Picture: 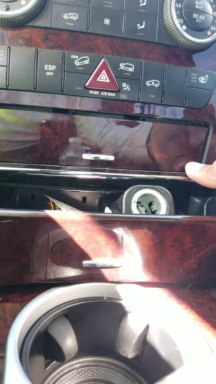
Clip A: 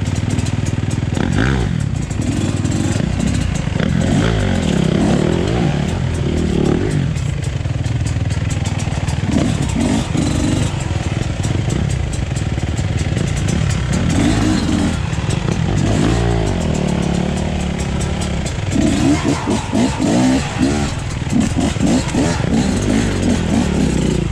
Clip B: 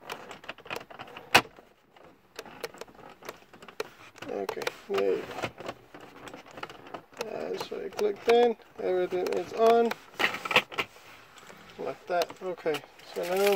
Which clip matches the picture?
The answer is B